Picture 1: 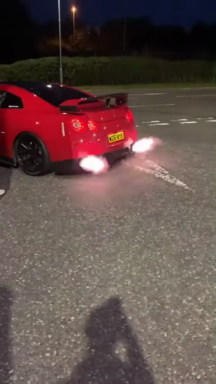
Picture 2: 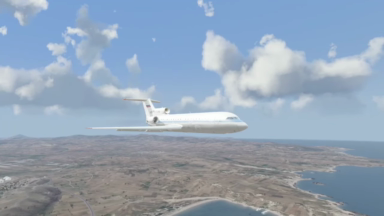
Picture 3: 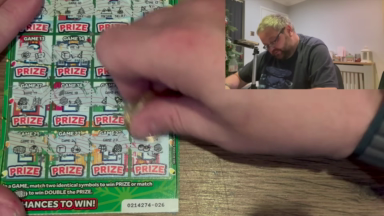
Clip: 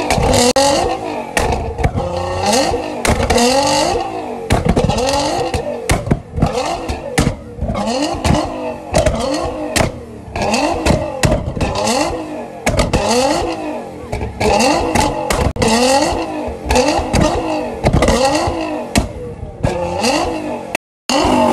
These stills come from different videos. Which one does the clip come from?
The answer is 1